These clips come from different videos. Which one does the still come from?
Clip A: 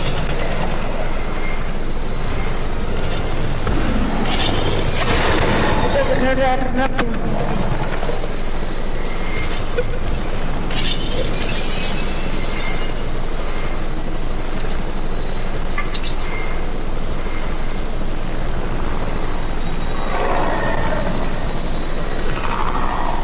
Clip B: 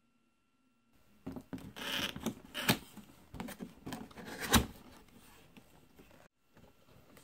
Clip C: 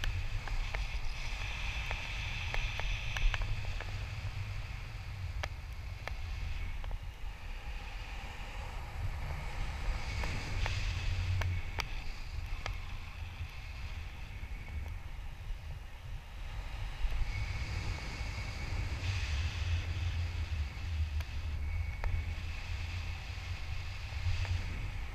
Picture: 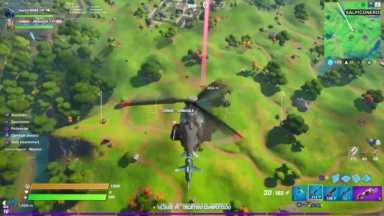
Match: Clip A